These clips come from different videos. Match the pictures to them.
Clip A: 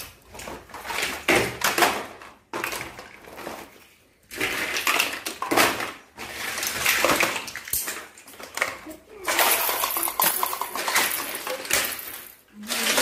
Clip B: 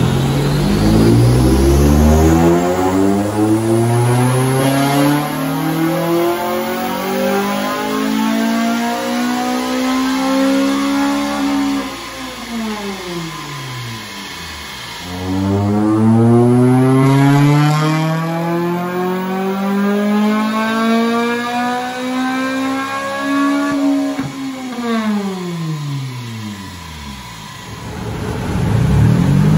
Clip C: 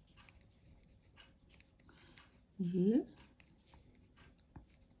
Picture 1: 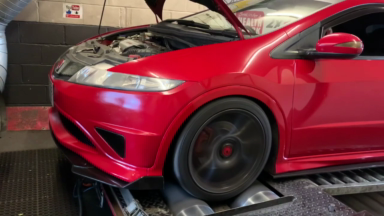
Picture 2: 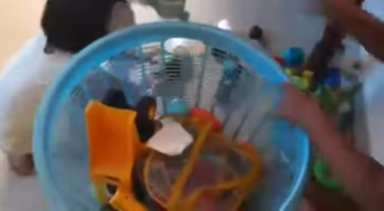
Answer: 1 B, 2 A